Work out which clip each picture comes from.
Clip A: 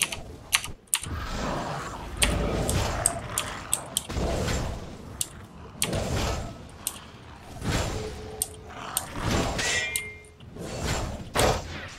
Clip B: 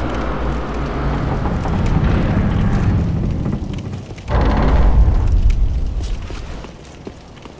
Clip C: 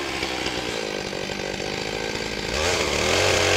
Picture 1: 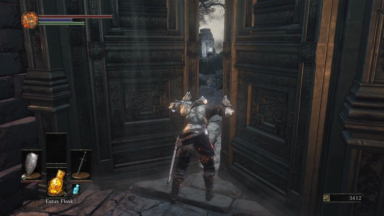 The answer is B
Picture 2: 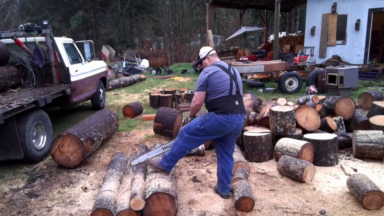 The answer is C